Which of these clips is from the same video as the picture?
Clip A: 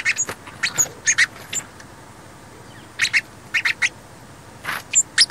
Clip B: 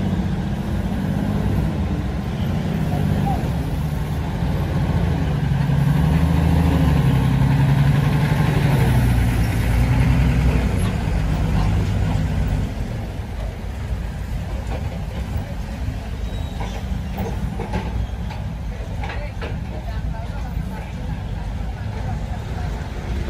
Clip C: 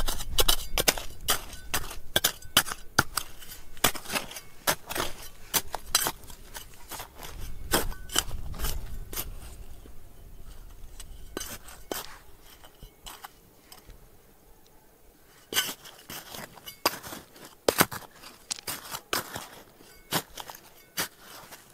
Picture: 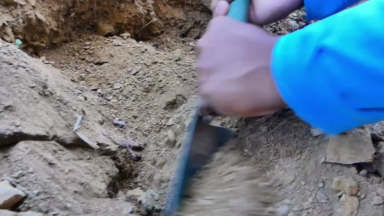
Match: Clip C